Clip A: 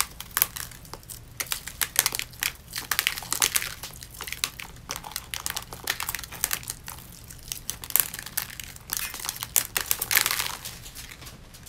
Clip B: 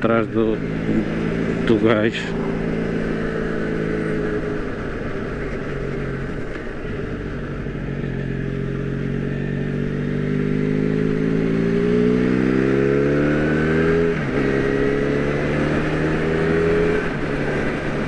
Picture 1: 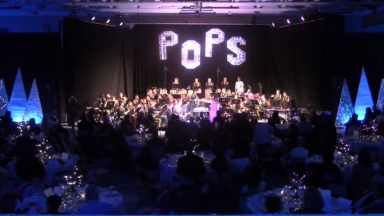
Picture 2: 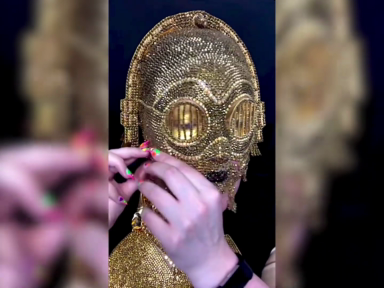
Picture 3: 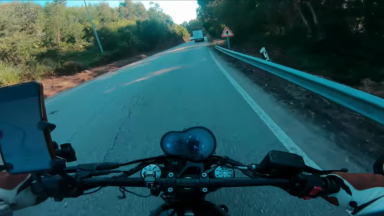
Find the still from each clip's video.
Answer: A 2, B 3